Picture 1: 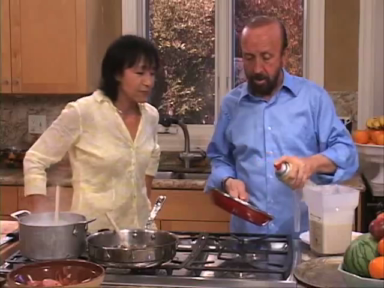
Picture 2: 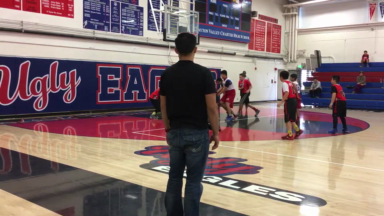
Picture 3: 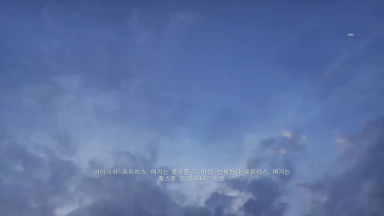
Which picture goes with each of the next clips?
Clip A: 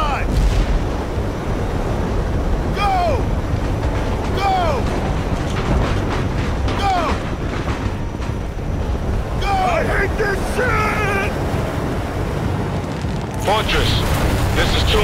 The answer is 3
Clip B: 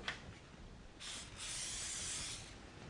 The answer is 1